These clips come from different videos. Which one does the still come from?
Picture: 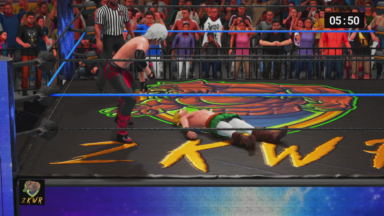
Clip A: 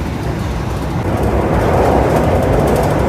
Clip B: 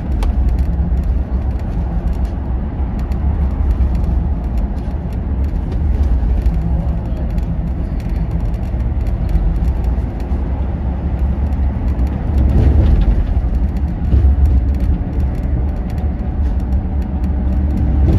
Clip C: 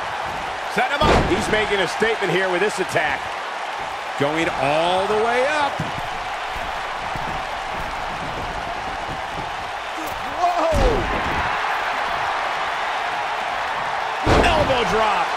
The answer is C